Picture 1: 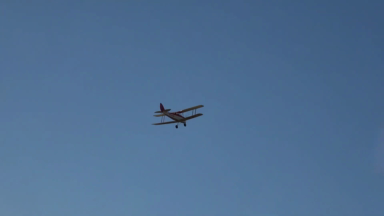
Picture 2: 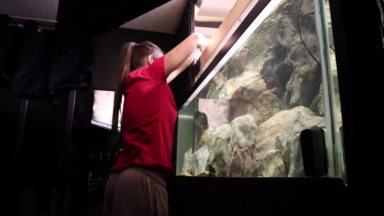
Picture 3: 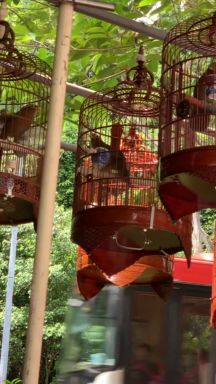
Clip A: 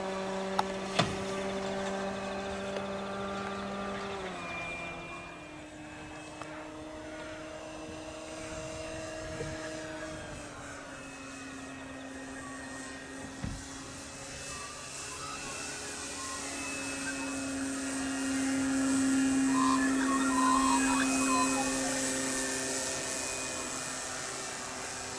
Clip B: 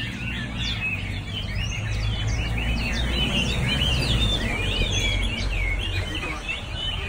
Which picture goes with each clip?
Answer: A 1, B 3